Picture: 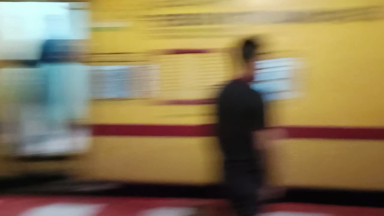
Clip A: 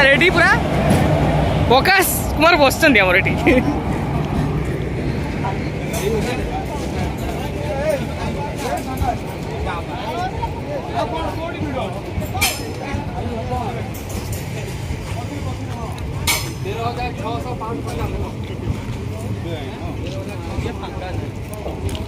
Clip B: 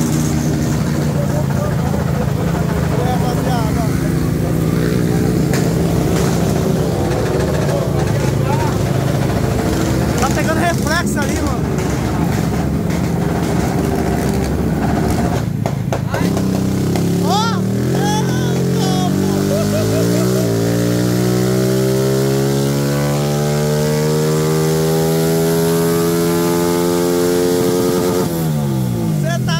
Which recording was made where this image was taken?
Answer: A